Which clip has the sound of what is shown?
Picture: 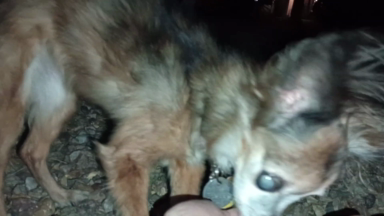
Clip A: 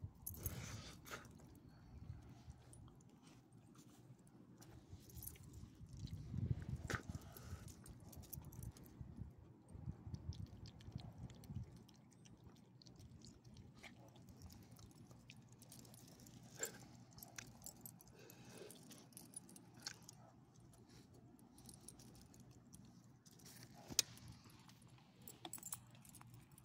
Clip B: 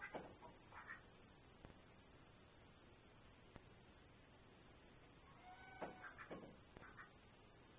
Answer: A